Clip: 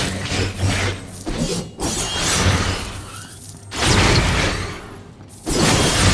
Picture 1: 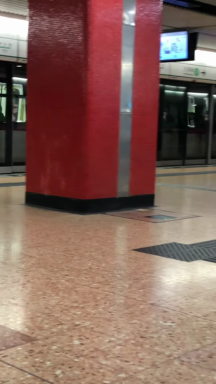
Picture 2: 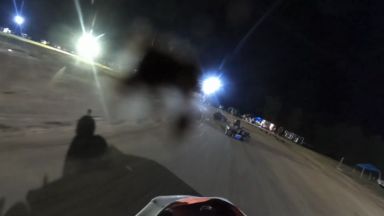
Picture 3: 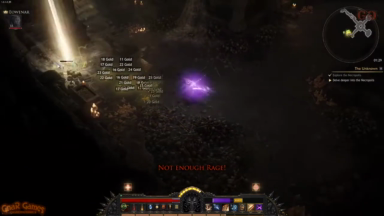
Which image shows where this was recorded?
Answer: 3